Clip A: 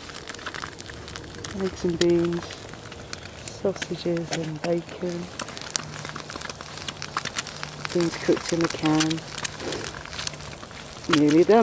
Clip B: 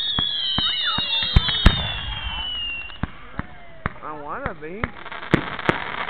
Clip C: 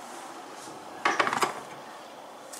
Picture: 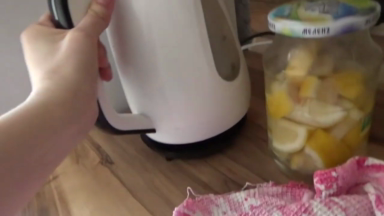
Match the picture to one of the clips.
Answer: C